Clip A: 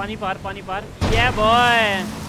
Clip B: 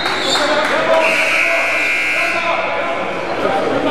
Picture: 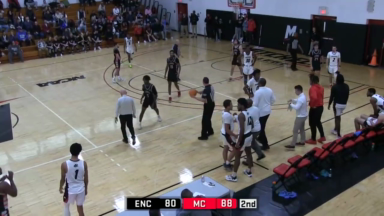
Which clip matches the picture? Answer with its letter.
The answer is B